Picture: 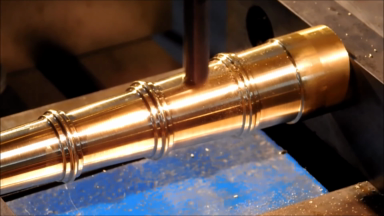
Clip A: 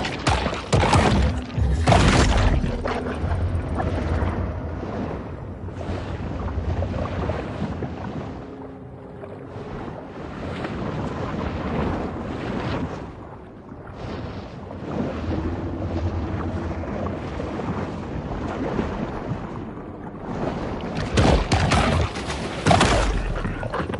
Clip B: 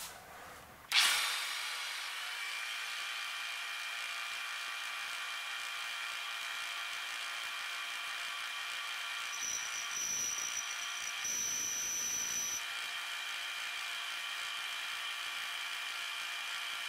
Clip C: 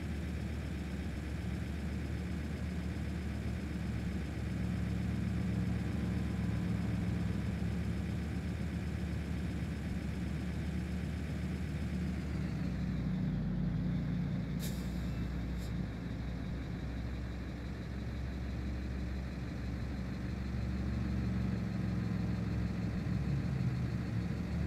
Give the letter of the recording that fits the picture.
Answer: B